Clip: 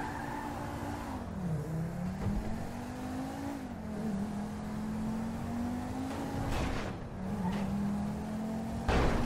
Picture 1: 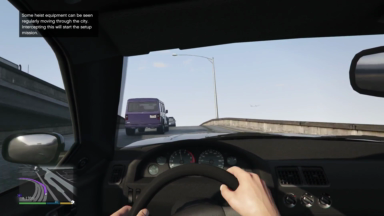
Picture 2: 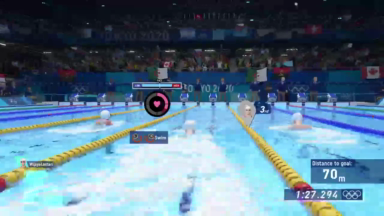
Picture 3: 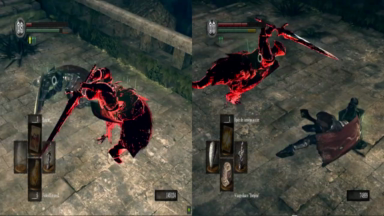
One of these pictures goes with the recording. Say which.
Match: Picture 1